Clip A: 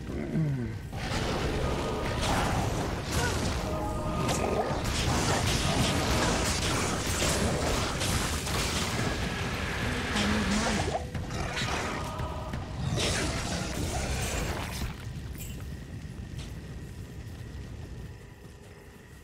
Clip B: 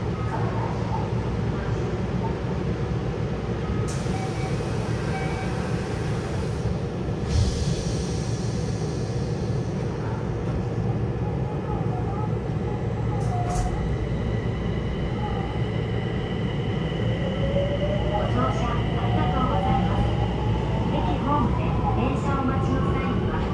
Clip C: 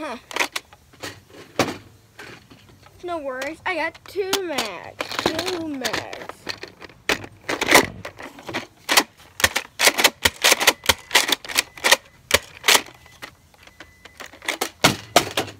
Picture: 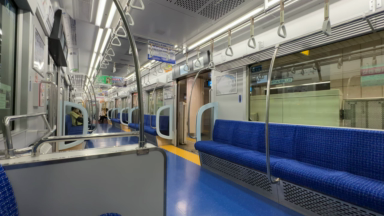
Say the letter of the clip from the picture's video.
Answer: B